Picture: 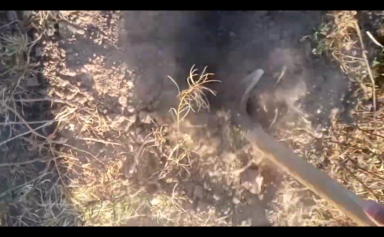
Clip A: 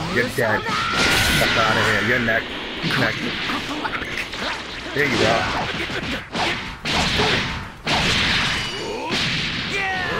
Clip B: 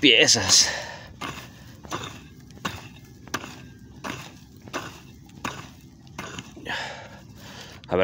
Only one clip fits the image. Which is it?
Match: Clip B